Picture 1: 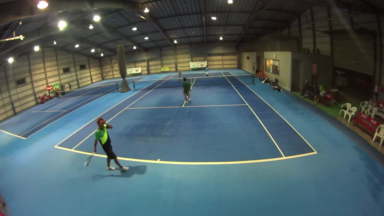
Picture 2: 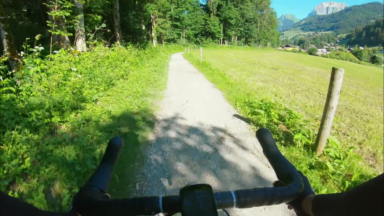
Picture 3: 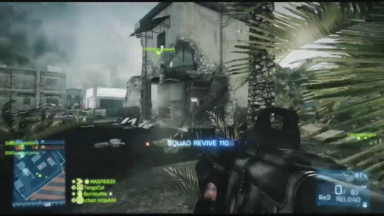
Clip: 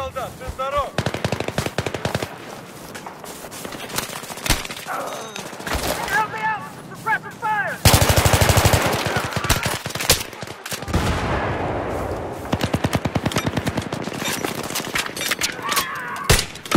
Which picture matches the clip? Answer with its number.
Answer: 3